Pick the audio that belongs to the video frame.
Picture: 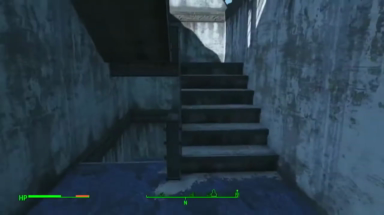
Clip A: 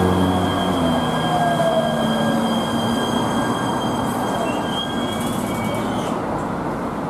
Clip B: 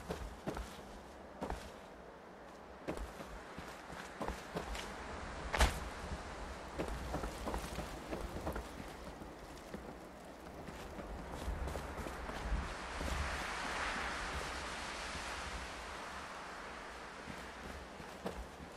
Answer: B